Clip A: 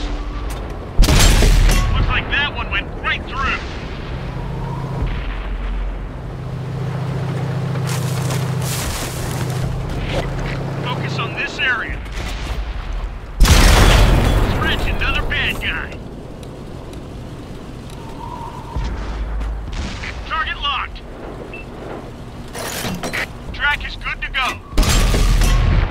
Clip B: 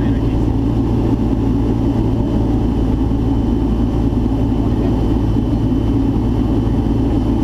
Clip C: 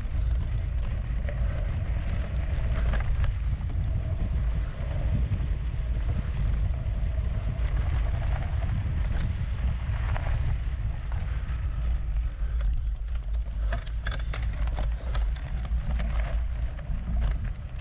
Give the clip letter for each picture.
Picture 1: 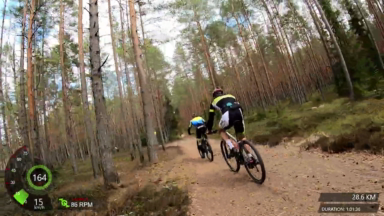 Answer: C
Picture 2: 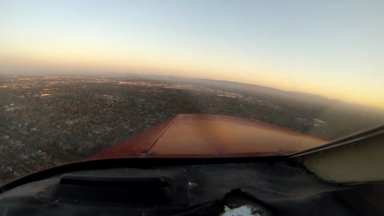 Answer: B